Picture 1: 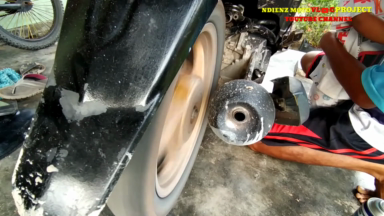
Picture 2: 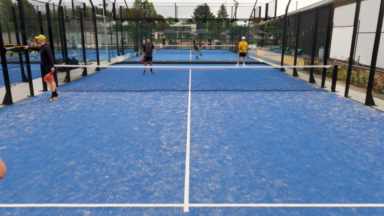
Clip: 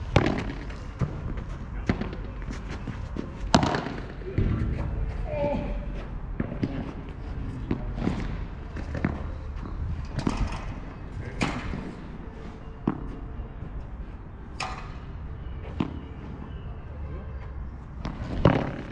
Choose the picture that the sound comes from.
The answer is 2